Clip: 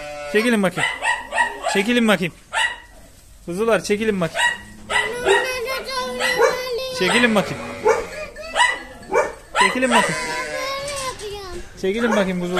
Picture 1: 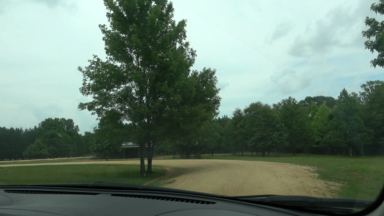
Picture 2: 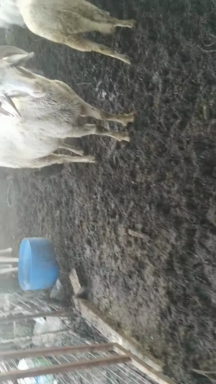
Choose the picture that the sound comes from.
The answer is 2